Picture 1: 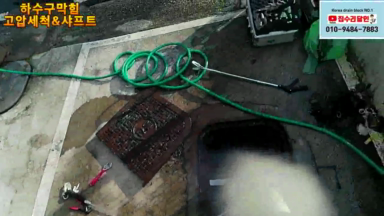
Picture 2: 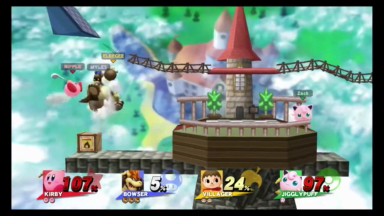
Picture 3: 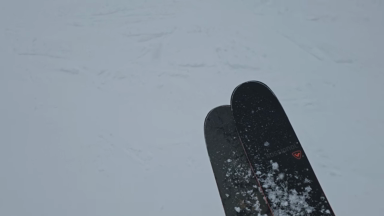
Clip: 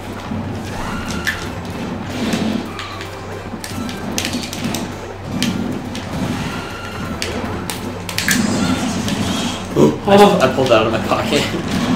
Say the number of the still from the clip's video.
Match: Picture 2